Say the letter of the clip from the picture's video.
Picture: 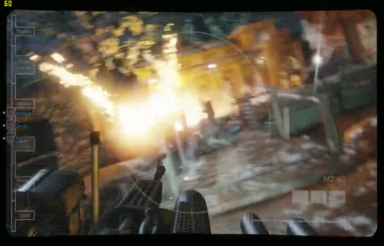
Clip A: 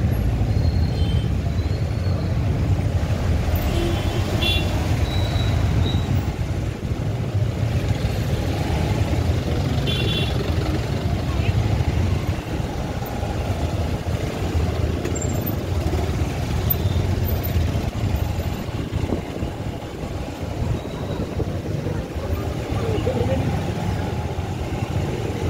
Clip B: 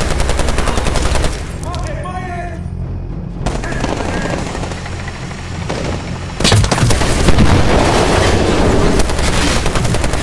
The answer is B